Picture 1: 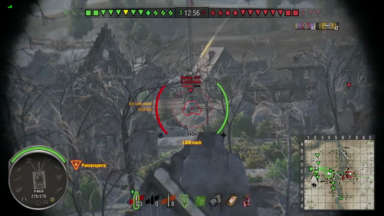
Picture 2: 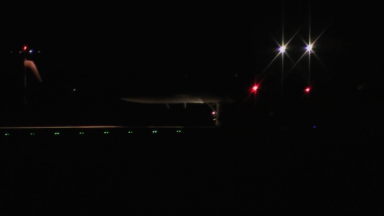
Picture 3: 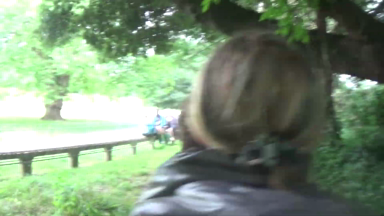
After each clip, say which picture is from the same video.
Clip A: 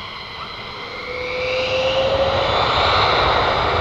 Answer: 2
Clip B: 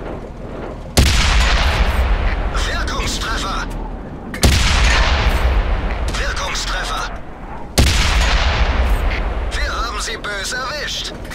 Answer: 1